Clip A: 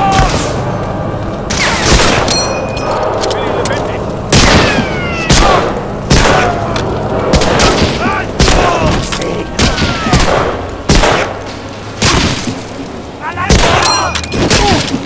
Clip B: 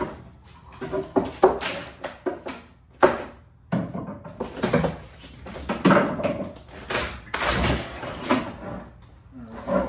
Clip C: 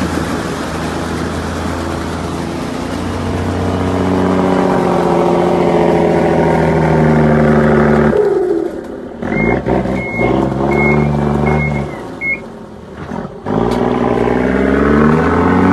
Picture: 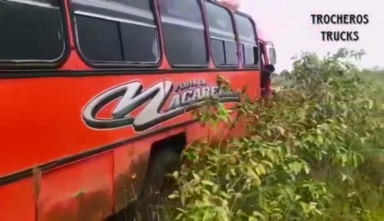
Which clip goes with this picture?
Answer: C